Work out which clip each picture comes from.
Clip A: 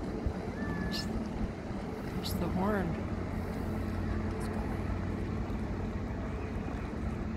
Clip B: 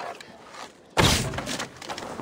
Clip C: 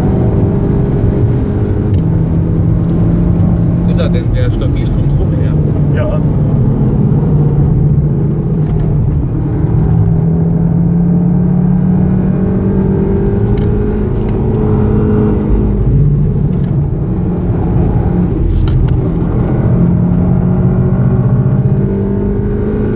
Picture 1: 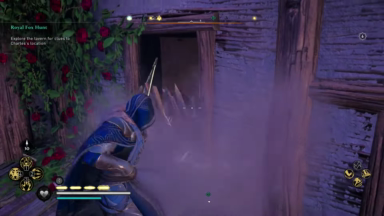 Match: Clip B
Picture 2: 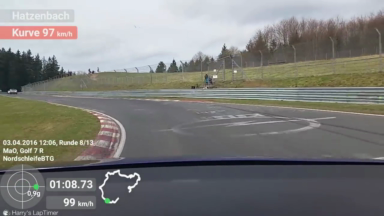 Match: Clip C